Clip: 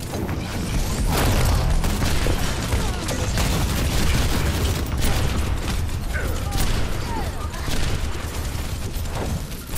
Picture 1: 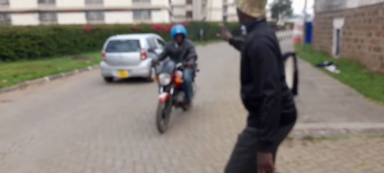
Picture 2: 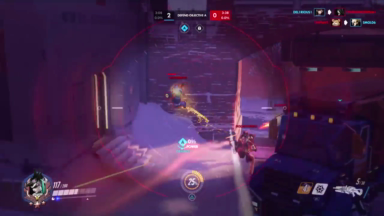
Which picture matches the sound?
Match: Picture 2